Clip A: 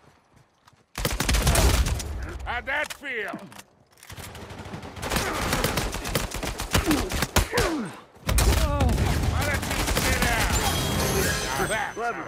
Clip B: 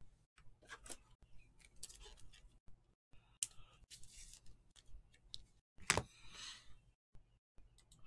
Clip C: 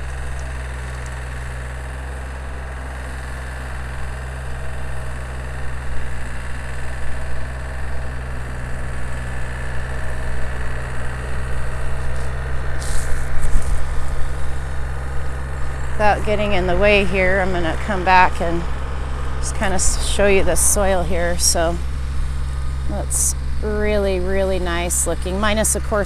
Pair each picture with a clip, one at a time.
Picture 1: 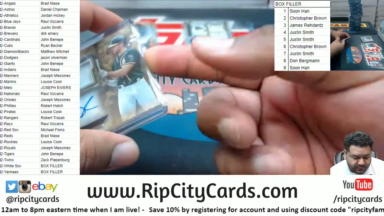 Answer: B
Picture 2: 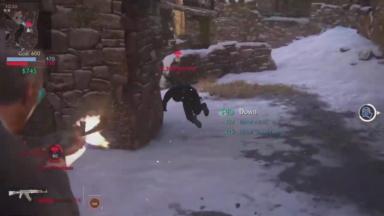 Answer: A